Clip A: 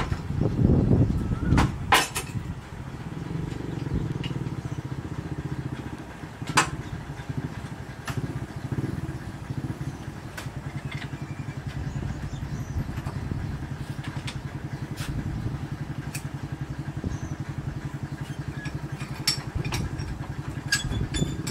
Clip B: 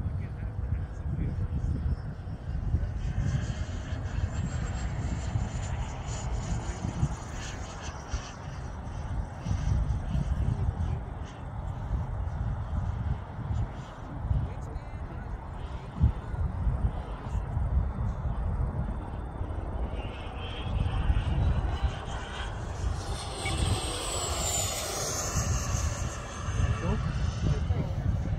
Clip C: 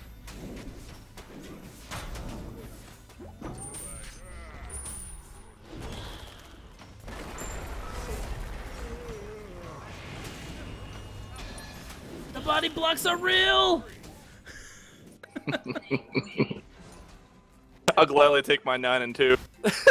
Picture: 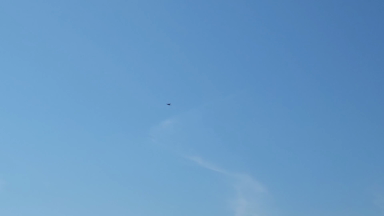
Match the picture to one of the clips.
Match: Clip B